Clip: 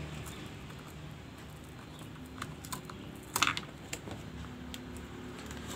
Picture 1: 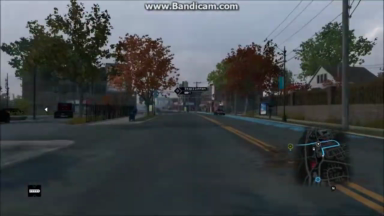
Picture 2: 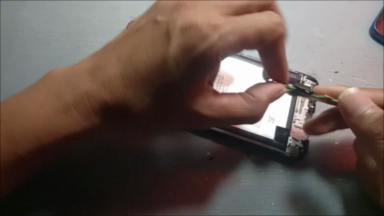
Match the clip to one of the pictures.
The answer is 2